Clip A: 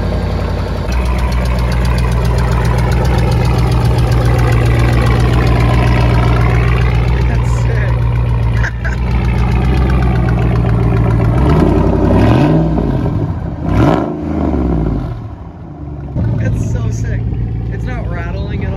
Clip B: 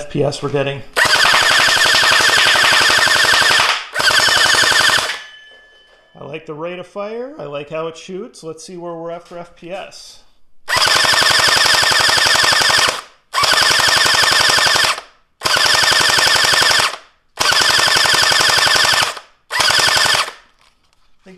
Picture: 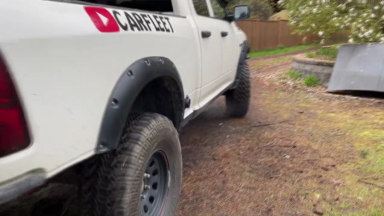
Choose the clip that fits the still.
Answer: A